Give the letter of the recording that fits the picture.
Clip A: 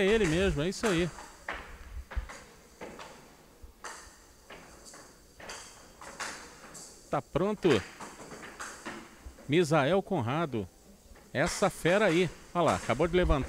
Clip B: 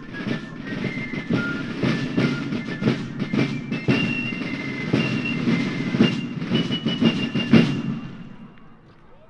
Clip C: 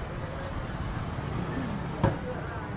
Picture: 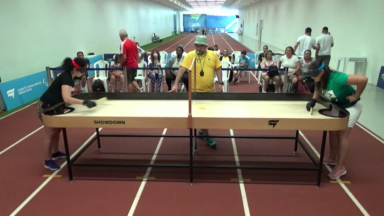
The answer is A